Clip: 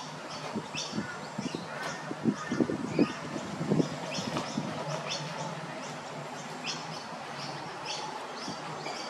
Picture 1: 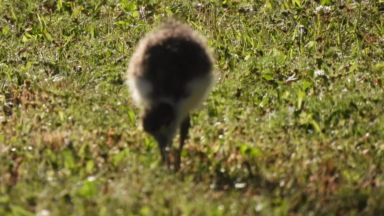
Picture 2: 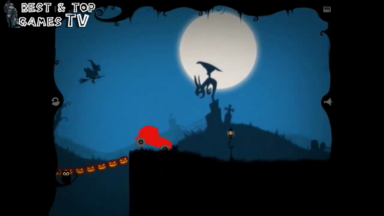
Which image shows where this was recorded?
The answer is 1